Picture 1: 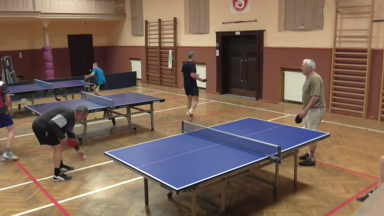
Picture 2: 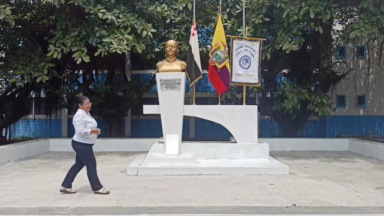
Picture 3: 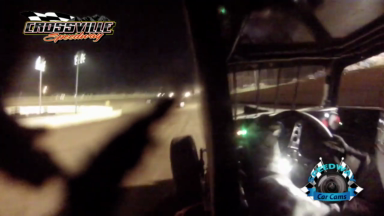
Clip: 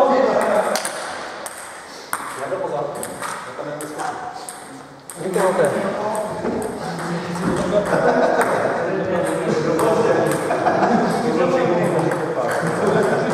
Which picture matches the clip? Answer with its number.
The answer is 1